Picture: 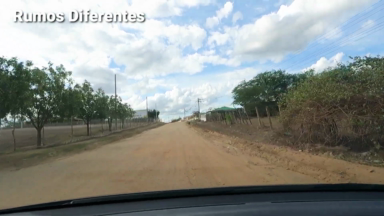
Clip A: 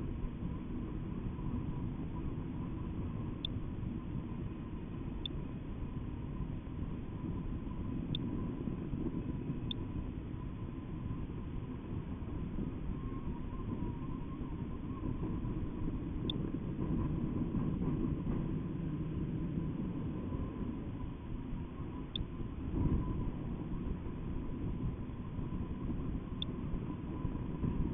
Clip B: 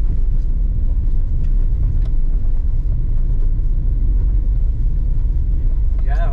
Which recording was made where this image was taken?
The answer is B